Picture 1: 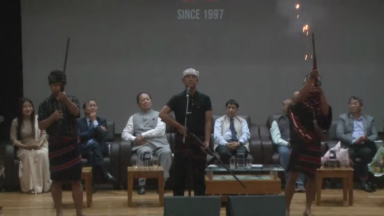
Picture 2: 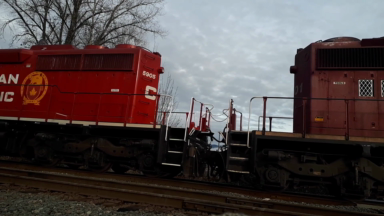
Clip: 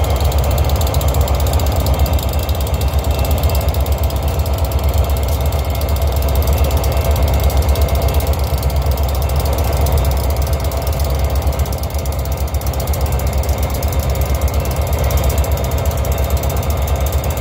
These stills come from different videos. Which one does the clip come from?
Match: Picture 2